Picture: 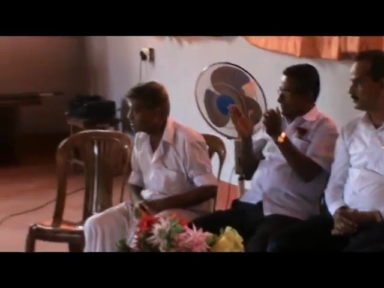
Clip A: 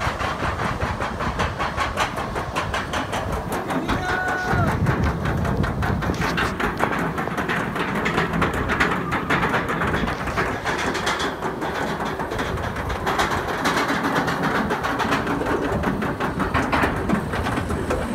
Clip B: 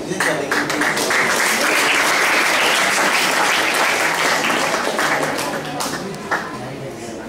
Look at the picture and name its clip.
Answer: B